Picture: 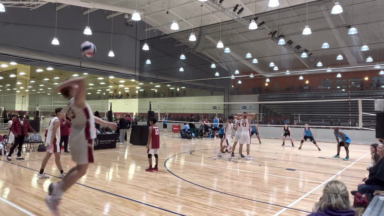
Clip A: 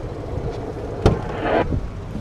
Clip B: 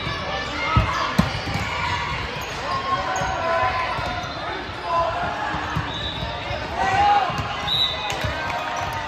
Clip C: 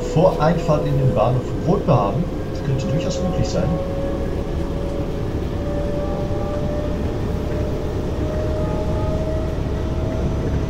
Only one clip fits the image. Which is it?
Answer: B